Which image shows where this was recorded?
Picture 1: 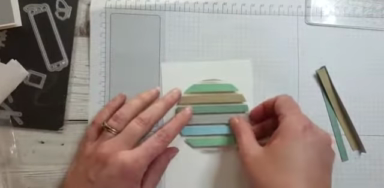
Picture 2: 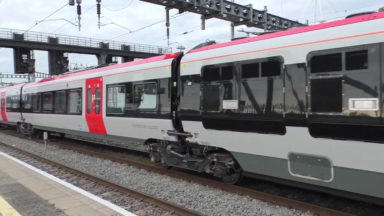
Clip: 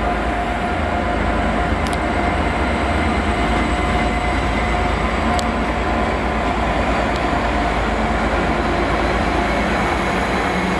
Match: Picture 2